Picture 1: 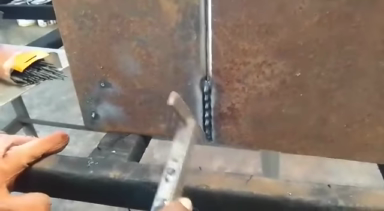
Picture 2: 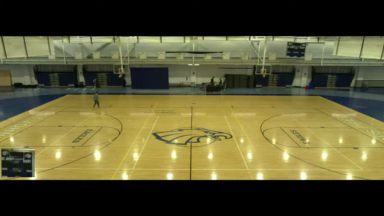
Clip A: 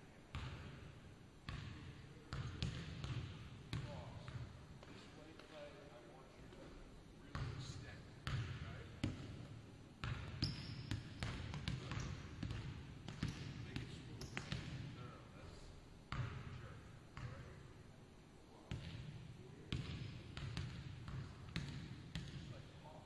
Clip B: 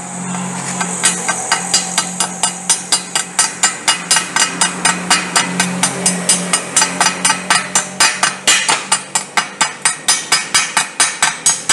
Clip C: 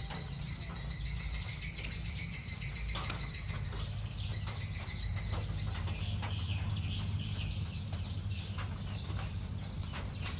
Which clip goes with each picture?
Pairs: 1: B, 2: A